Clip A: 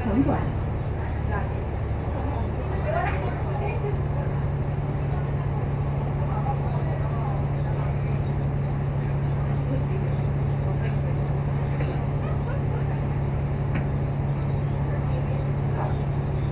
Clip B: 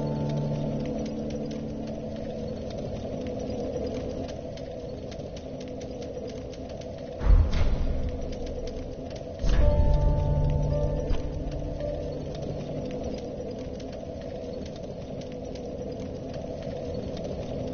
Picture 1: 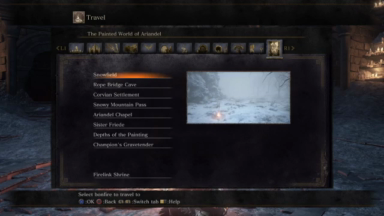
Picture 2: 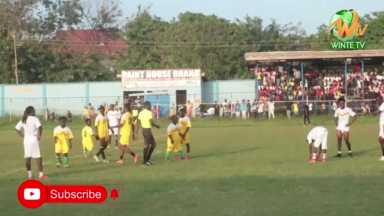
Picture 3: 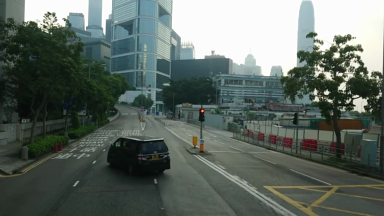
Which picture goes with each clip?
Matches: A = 3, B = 1